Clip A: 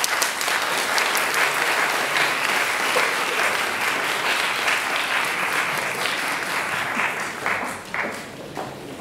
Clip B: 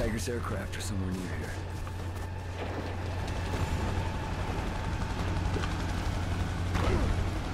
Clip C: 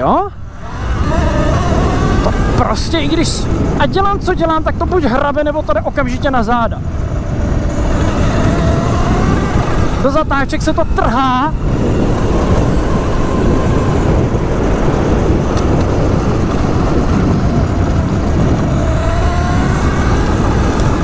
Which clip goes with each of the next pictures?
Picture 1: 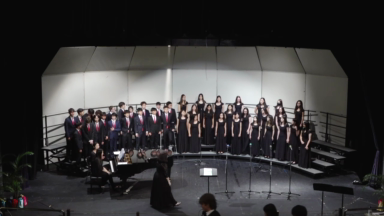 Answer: A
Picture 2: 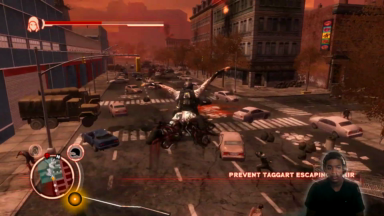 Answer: B